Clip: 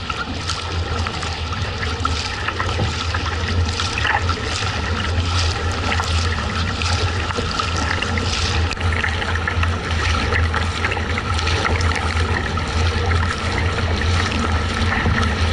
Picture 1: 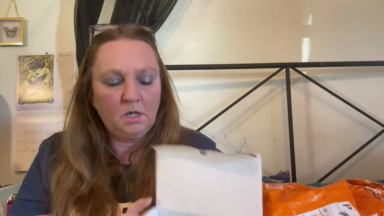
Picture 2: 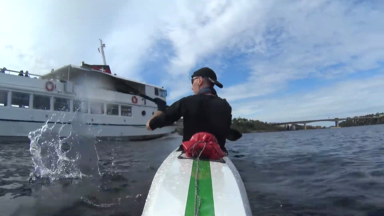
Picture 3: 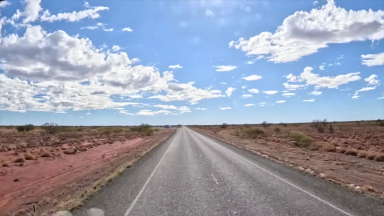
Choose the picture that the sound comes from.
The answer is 2